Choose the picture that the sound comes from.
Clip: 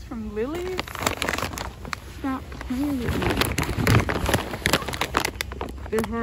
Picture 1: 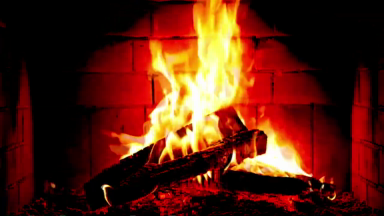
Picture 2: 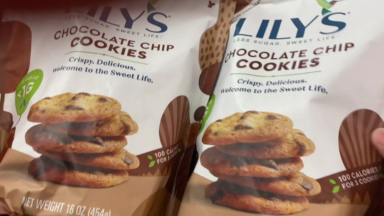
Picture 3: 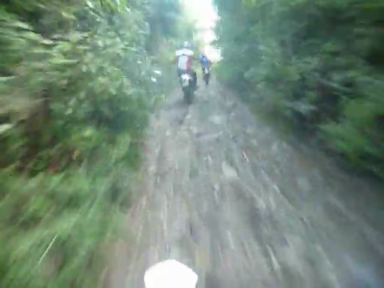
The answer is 2